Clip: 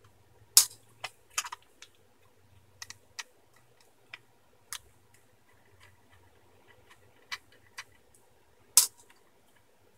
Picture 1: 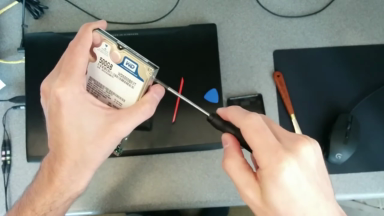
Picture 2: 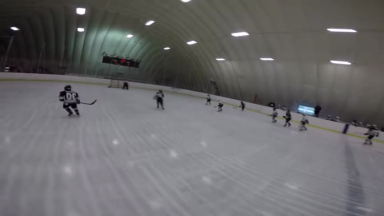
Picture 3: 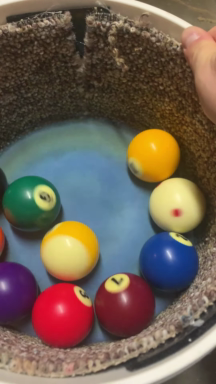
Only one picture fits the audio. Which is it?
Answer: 1